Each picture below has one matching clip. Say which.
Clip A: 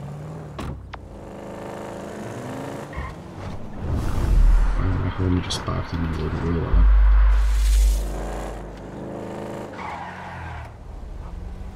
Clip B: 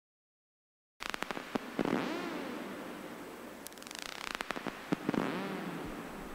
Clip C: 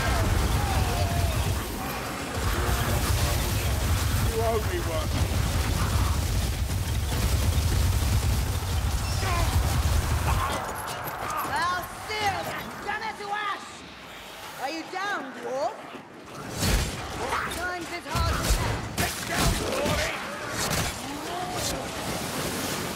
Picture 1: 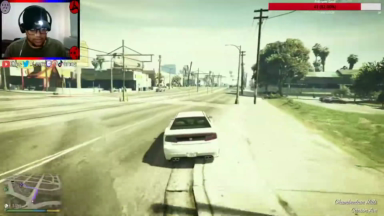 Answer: A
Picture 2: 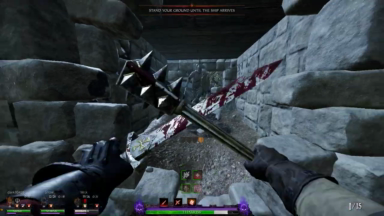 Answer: C